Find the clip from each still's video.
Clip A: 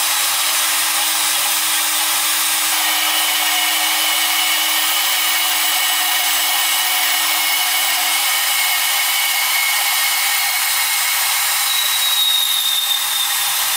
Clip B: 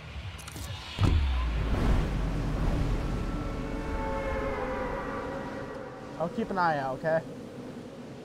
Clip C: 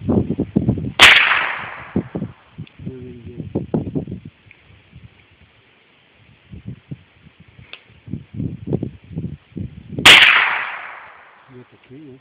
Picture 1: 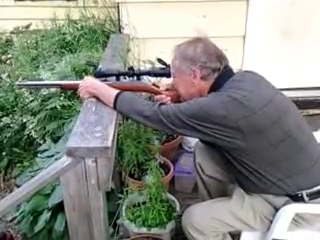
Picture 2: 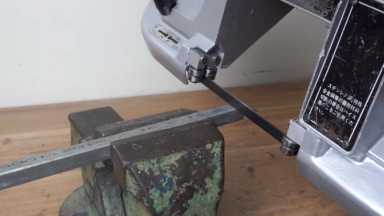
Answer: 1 C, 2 A